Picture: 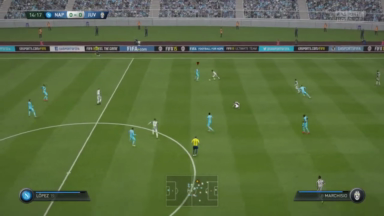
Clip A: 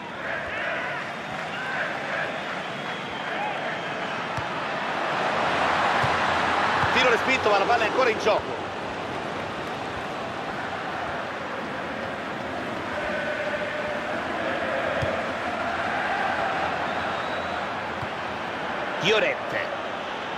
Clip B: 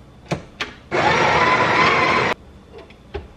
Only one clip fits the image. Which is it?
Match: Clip A